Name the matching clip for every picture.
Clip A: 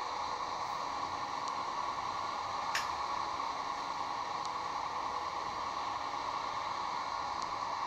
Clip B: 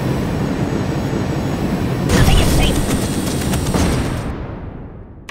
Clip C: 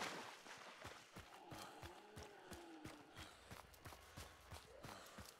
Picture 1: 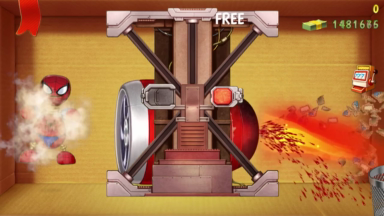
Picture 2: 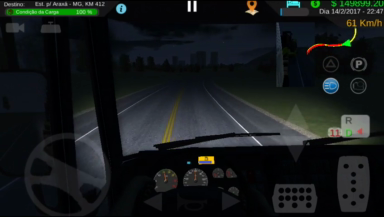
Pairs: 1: B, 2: A